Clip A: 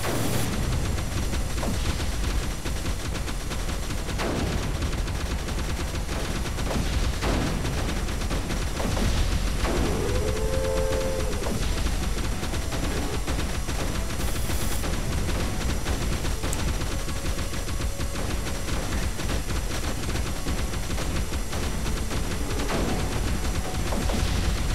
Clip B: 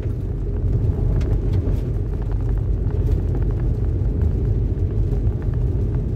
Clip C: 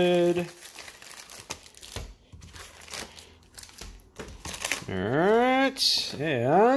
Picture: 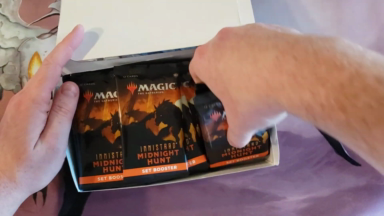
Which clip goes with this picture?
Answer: C